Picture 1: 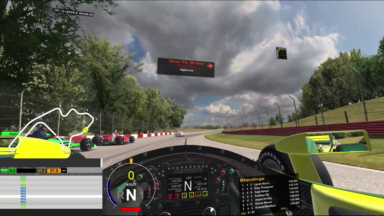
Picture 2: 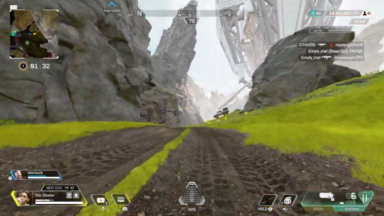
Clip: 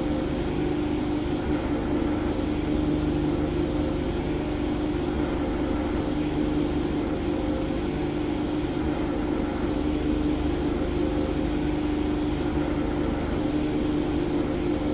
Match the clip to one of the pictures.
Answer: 1